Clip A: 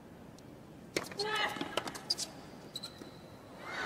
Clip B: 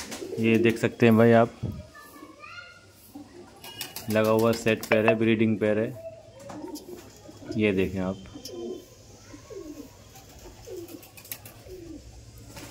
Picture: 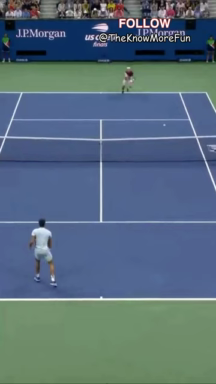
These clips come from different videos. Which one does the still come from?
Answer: A